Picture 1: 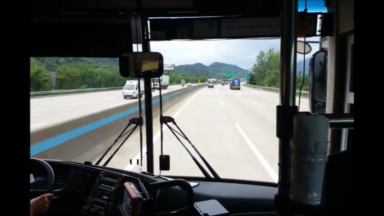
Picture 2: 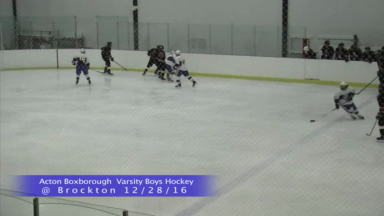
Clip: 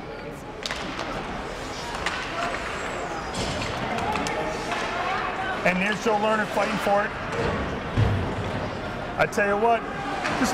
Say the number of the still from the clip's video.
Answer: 2